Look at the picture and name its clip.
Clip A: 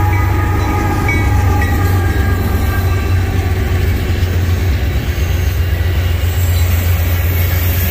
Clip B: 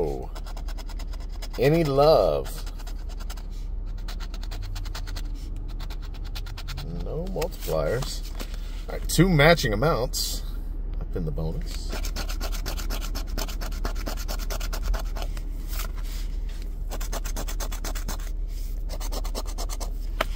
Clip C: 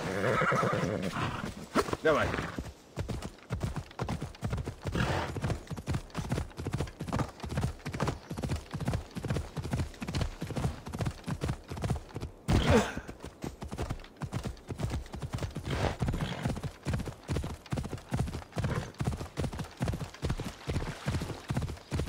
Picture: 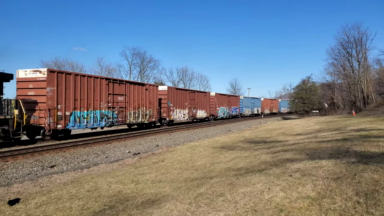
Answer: A